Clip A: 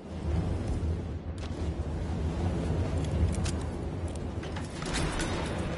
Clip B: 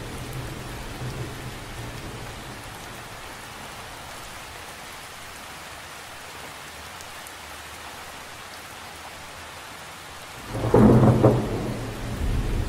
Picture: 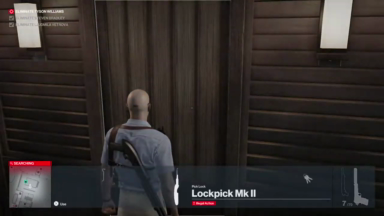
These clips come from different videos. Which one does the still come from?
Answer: A